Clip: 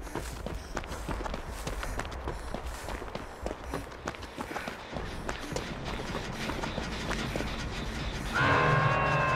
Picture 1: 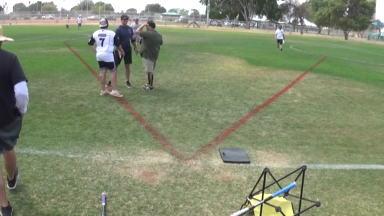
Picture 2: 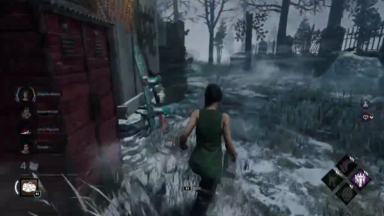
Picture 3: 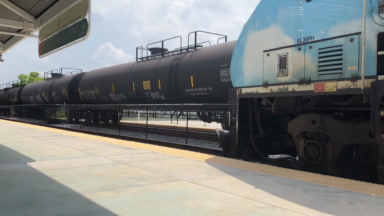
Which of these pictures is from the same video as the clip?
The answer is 2